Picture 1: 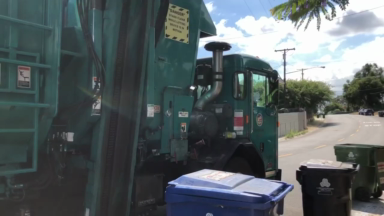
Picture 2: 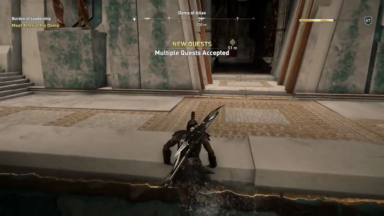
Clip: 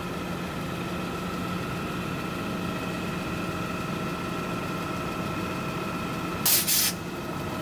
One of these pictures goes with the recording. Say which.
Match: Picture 1